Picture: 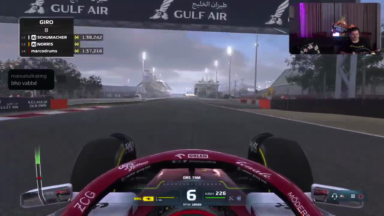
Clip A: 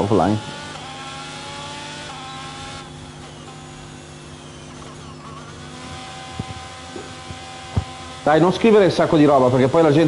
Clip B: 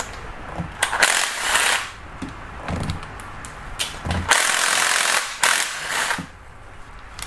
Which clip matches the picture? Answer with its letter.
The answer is A